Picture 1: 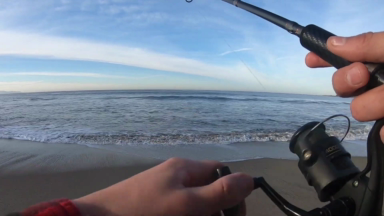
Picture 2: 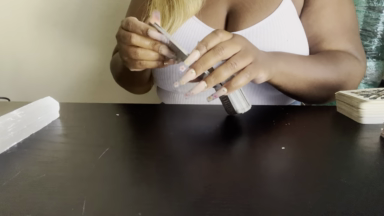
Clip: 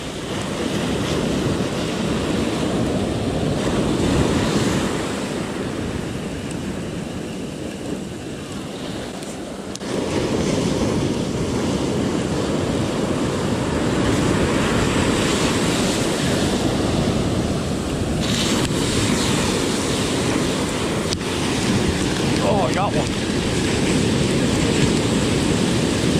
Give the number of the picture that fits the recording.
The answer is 1